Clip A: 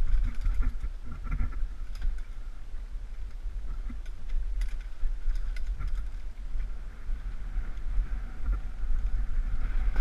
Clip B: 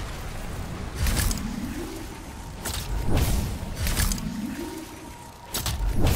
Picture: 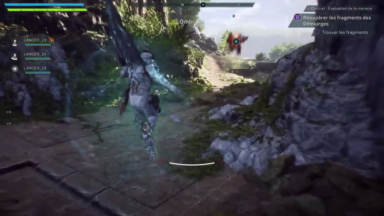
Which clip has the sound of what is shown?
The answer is B